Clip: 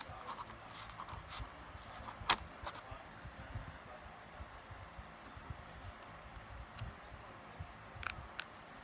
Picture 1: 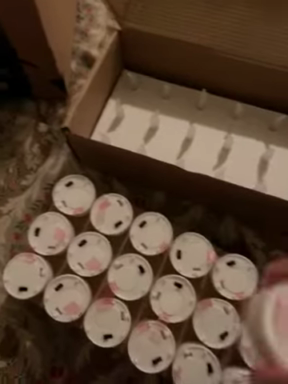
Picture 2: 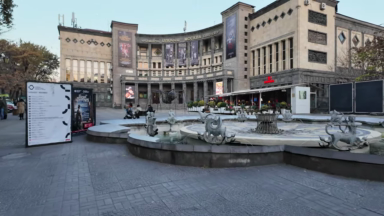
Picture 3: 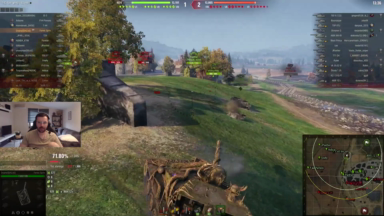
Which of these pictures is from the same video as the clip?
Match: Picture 1